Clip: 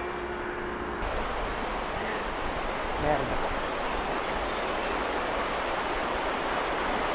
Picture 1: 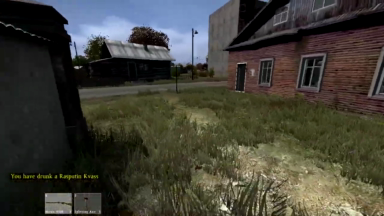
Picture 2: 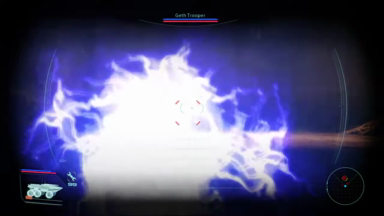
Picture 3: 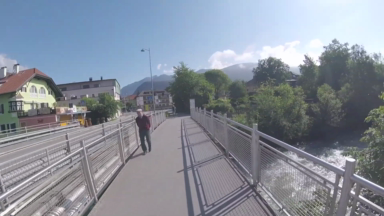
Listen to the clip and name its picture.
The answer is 3